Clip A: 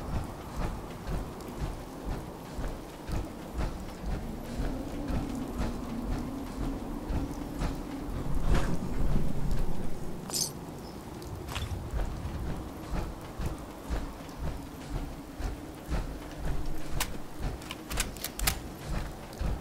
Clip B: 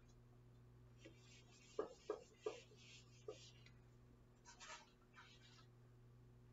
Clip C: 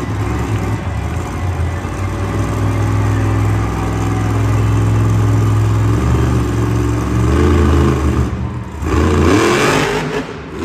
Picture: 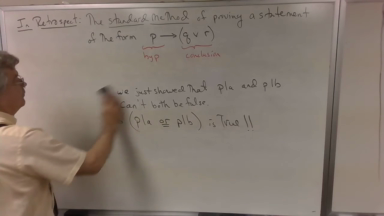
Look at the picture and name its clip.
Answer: B